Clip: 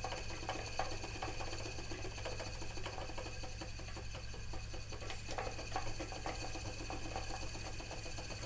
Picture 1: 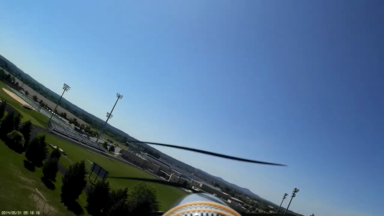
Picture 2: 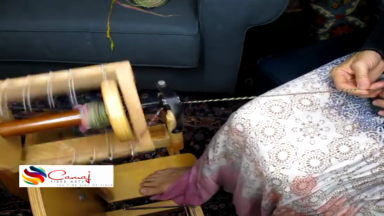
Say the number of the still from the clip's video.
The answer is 2